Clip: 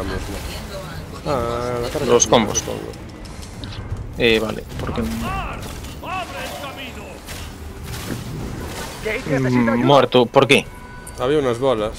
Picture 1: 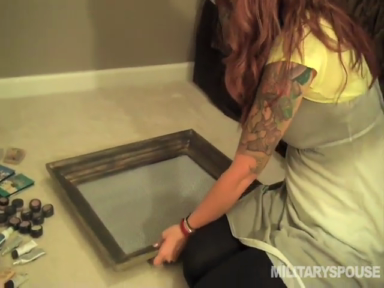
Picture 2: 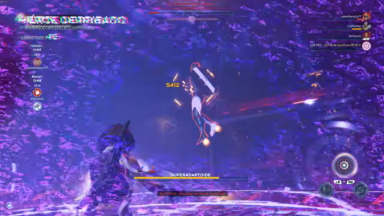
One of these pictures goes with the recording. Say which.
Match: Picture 2